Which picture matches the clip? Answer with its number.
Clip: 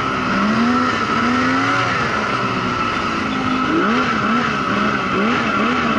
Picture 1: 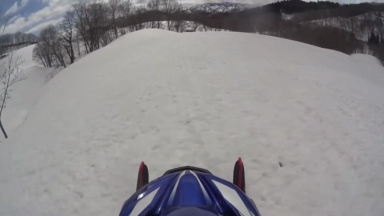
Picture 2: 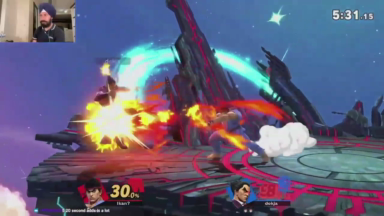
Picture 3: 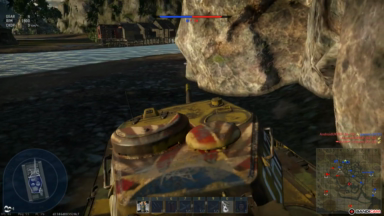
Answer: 1